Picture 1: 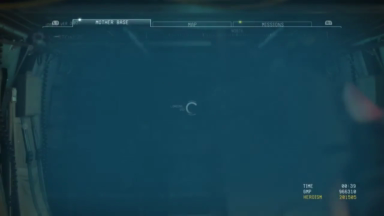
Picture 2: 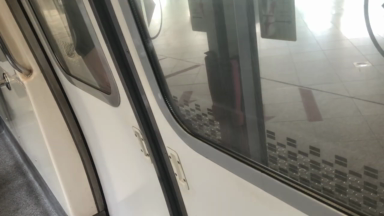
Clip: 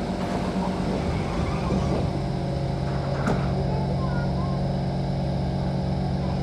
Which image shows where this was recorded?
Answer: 2